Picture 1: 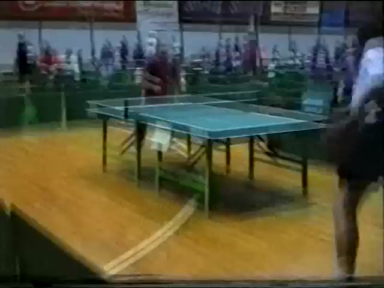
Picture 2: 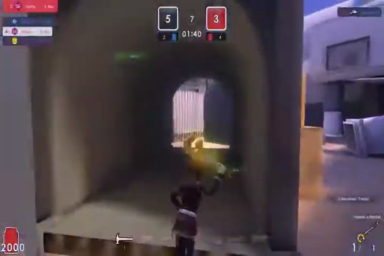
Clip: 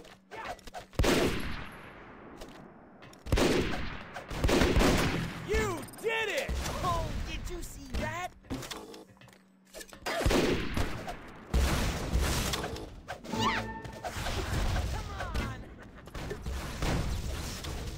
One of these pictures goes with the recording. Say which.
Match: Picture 2